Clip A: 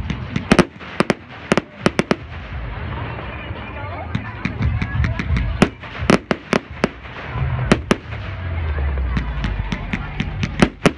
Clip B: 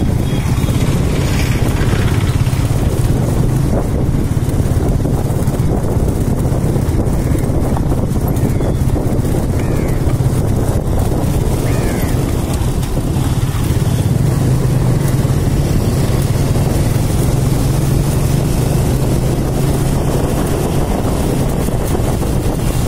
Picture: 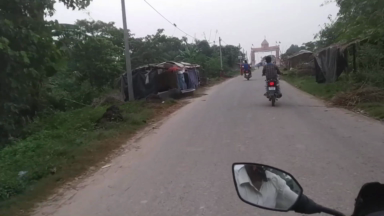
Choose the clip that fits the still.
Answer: B